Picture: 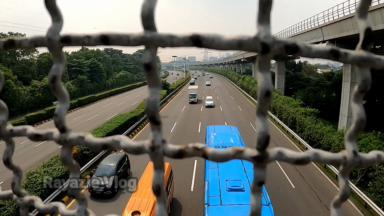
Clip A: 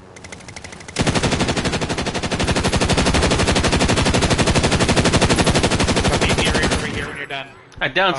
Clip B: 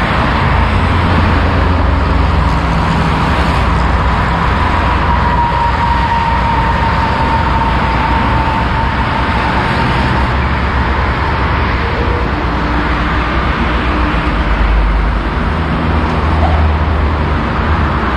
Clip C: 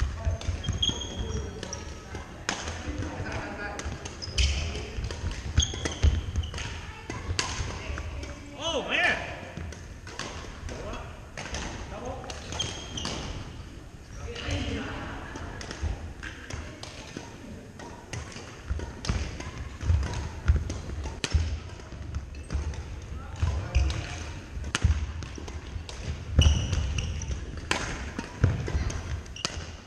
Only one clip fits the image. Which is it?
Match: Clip B